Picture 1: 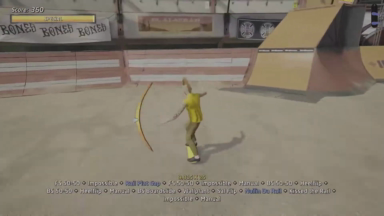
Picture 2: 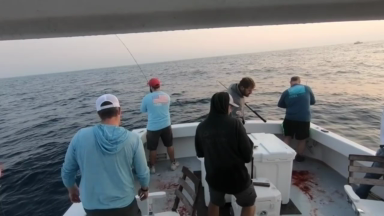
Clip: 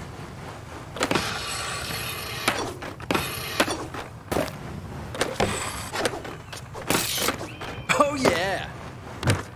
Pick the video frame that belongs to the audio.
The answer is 1